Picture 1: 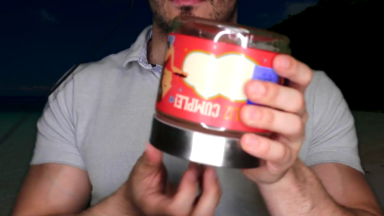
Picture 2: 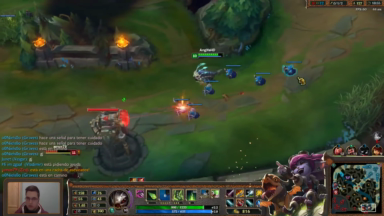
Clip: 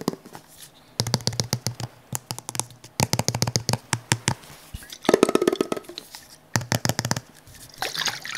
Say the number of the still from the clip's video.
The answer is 1